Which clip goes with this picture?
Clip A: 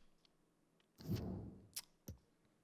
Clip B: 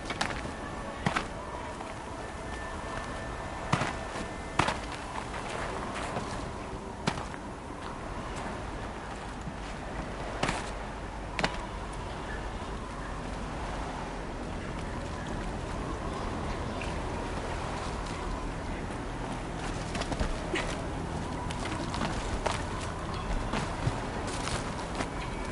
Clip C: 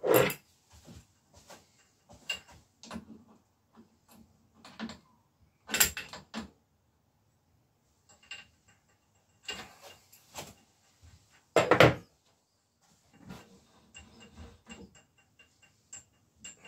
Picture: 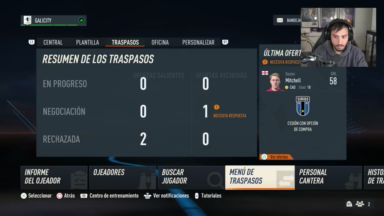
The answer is A